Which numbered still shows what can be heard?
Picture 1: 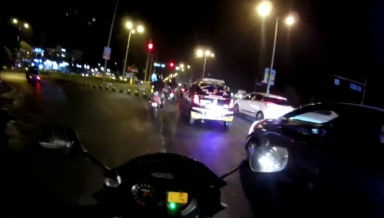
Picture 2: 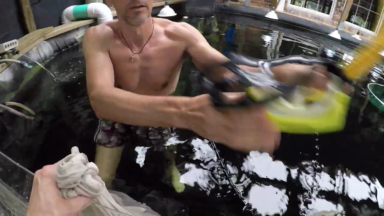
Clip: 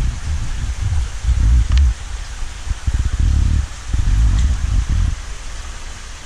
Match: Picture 2